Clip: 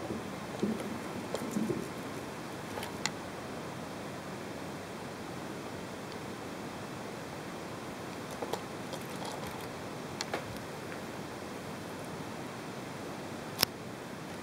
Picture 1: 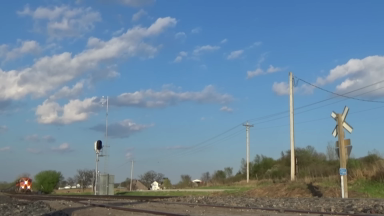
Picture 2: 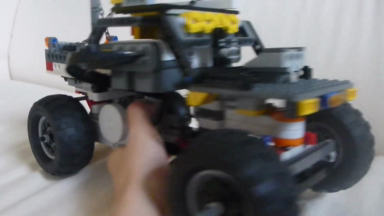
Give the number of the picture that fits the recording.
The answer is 2